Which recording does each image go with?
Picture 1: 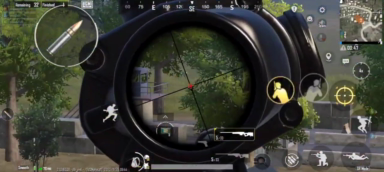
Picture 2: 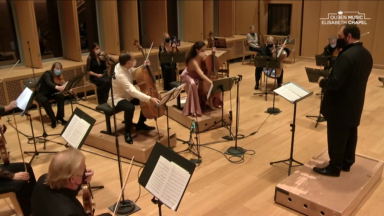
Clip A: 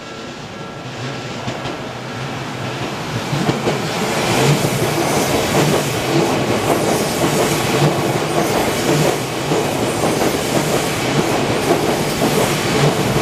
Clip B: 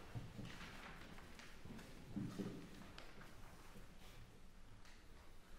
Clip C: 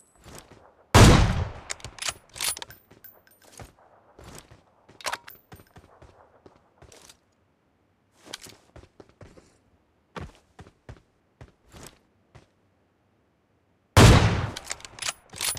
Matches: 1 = C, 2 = B